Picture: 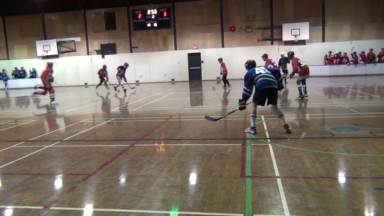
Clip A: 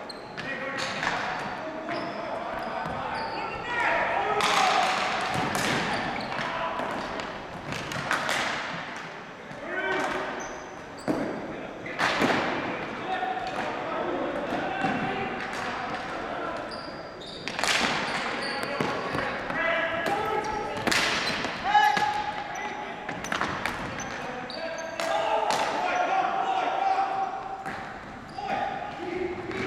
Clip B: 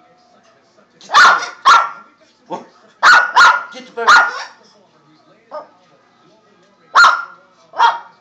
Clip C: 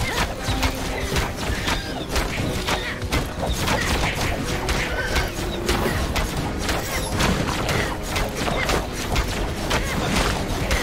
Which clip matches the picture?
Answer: A